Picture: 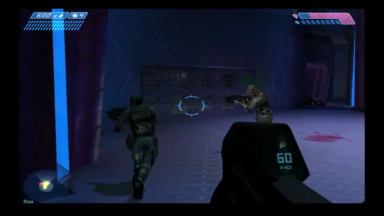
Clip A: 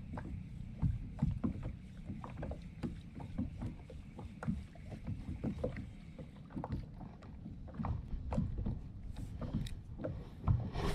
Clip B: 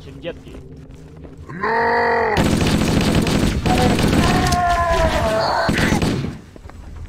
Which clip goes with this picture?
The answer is B